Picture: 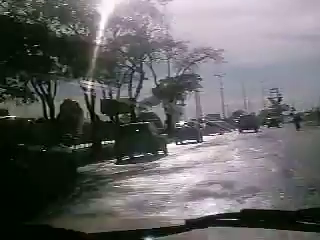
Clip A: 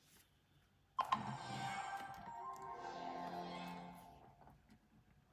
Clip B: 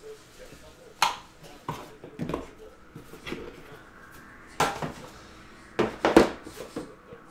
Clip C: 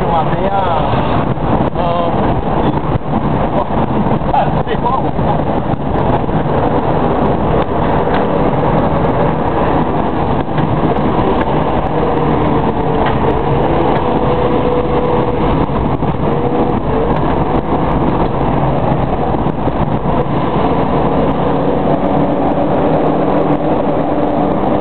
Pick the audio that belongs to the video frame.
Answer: C